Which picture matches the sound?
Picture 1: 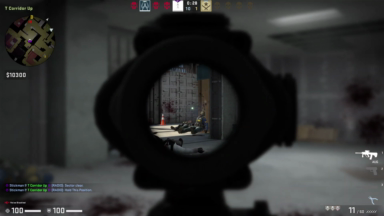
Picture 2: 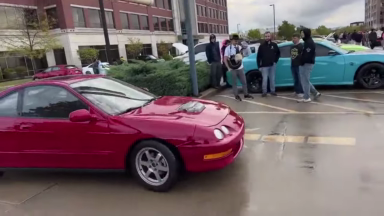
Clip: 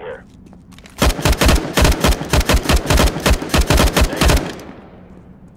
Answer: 1